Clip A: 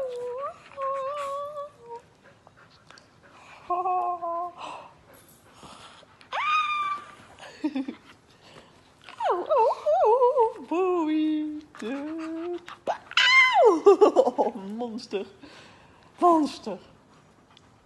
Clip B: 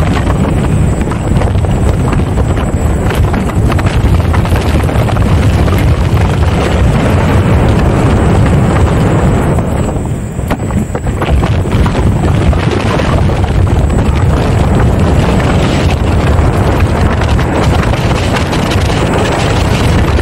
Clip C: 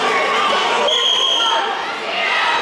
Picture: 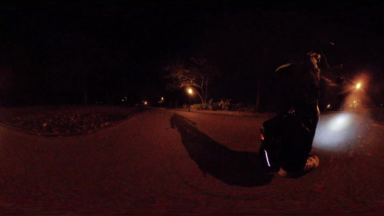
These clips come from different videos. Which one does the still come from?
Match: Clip B